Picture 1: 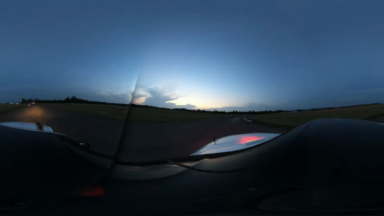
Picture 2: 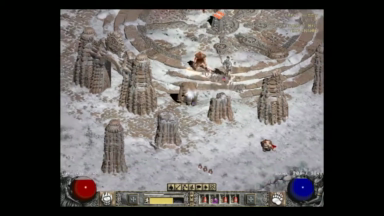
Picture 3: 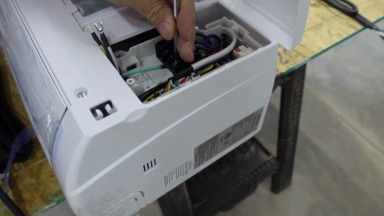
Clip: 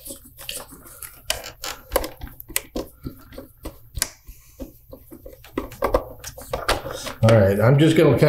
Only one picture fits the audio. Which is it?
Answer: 3